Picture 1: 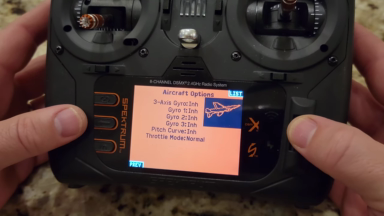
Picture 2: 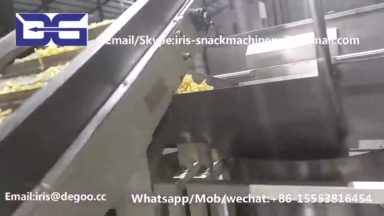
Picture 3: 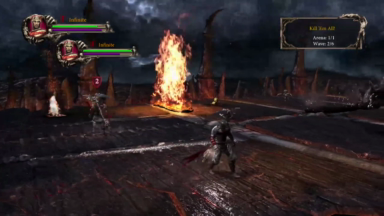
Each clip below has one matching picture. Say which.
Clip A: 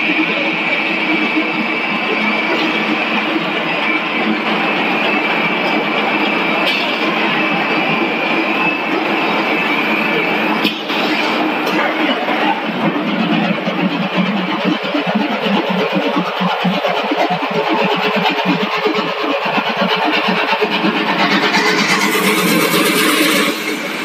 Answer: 2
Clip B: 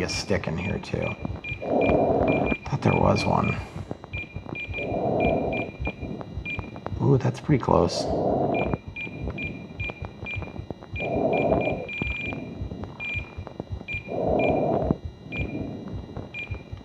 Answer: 1